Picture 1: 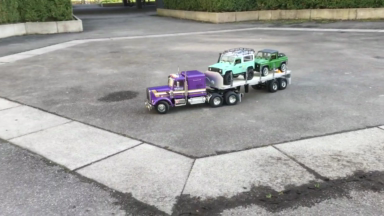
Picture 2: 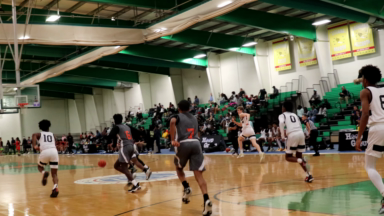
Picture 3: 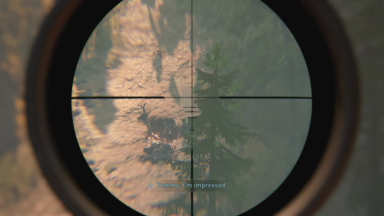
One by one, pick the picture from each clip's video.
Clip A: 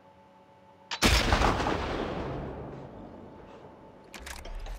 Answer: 3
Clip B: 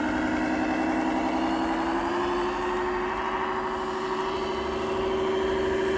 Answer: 1